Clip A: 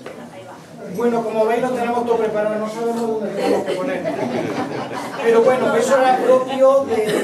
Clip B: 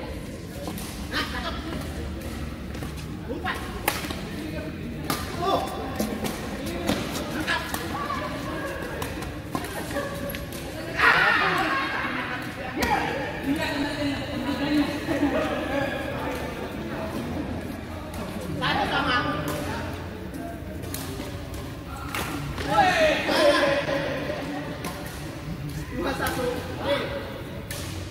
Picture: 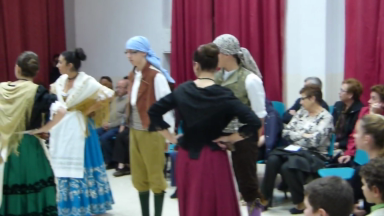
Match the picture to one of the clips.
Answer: A